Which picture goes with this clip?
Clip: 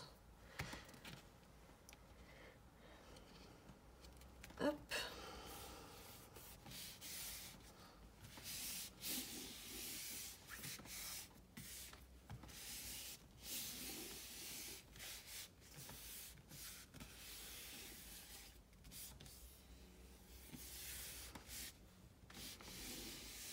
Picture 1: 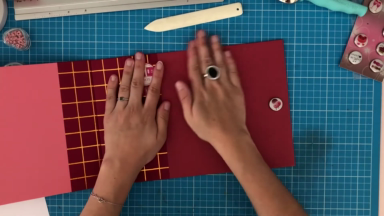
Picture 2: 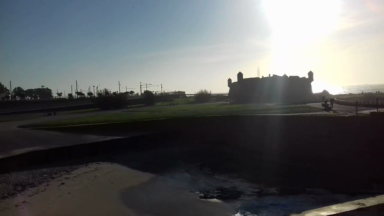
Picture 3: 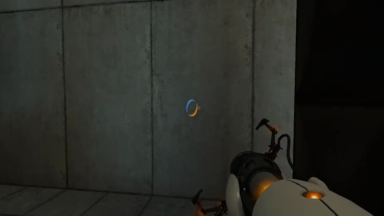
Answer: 1